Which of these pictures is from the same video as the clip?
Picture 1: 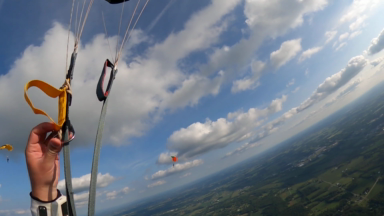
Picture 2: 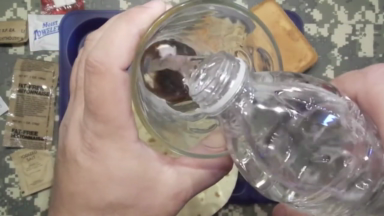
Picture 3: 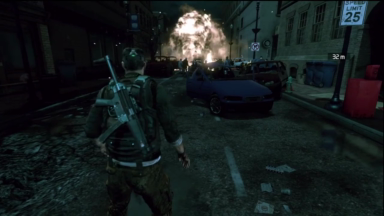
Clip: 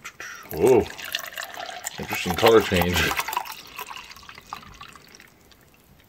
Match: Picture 2